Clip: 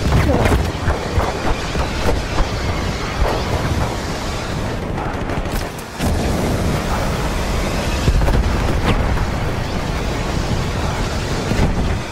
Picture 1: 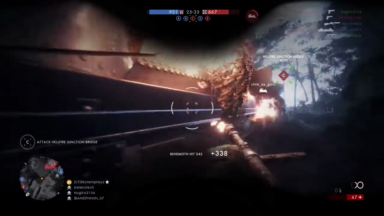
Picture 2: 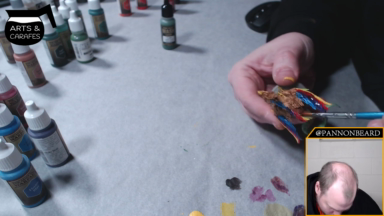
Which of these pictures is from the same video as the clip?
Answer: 1